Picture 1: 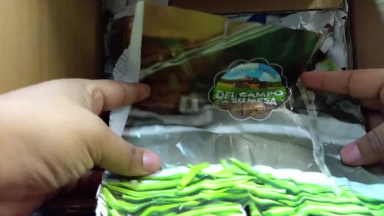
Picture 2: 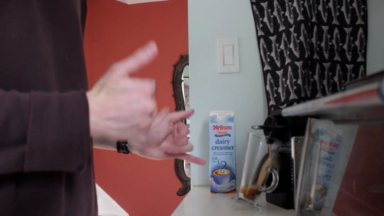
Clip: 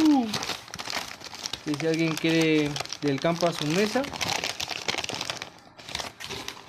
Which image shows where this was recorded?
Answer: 1